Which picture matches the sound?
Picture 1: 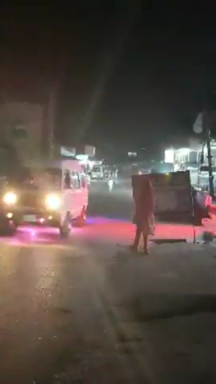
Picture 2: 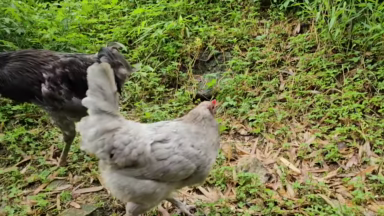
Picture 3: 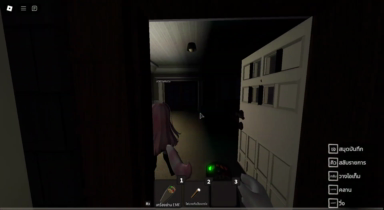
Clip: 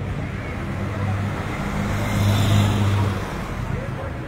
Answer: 1